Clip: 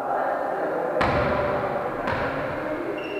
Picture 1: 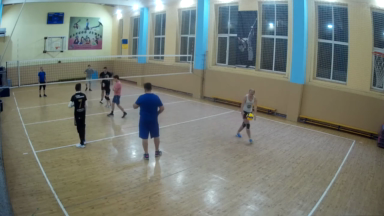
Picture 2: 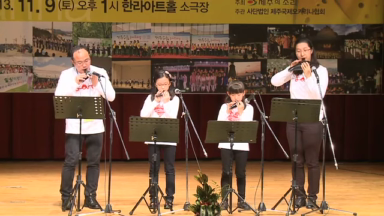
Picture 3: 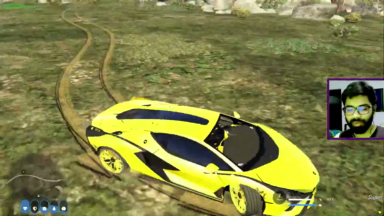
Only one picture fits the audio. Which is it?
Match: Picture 1